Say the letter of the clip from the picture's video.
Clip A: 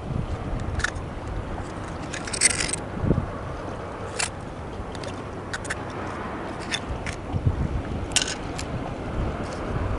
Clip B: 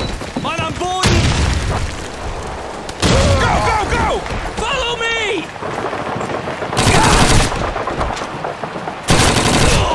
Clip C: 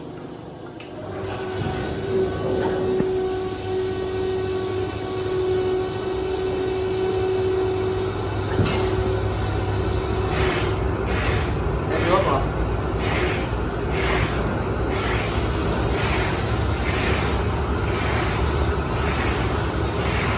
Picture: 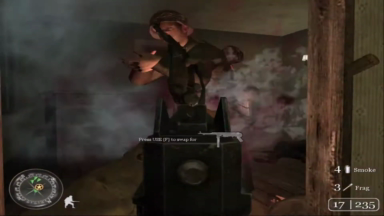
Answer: B